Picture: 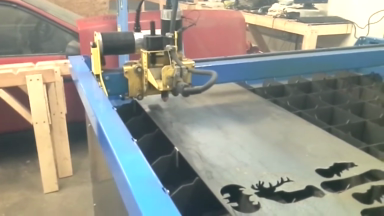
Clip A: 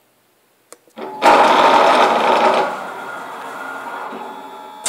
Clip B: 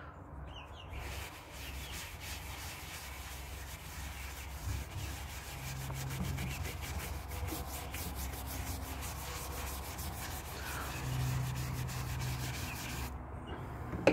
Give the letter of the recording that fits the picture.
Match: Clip A